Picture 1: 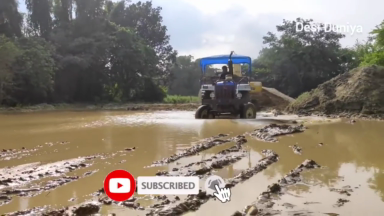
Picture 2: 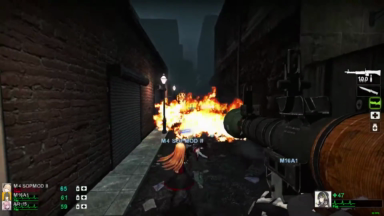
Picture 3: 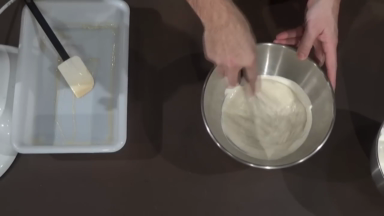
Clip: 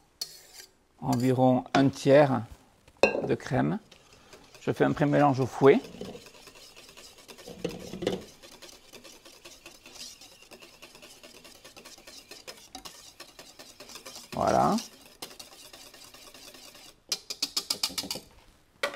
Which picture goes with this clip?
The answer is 3